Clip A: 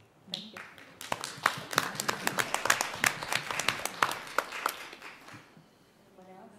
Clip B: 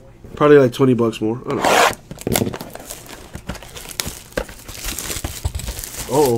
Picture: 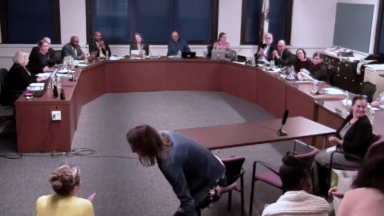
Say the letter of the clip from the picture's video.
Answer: A